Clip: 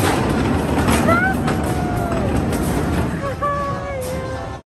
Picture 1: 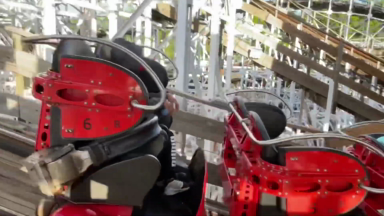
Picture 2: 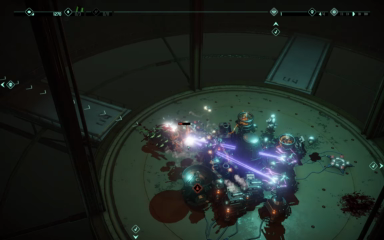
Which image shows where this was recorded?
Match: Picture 1